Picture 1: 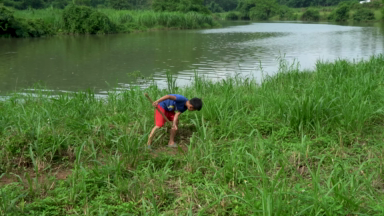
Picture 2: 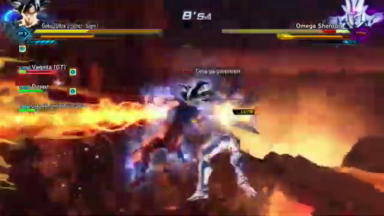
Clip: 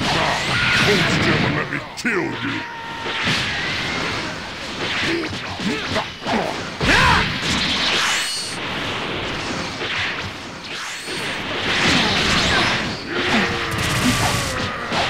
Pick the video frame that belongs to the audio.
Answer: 2